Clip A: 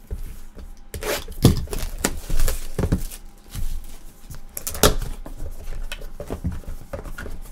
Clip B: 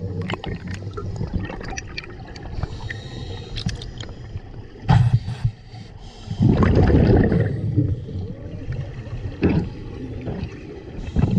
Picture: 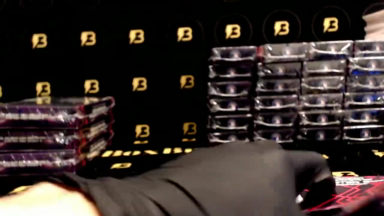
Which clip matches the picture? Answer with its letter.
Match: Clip A